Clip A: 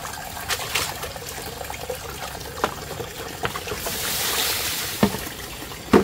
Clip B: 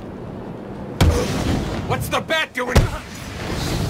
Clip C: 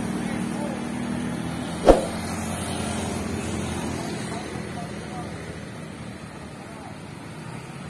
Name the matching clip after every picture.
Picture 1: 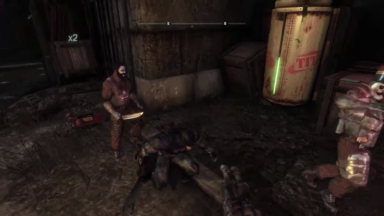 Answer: B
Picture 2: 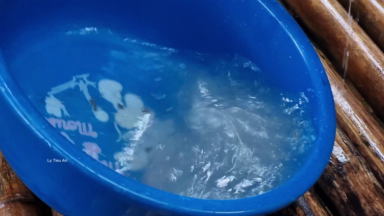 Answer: A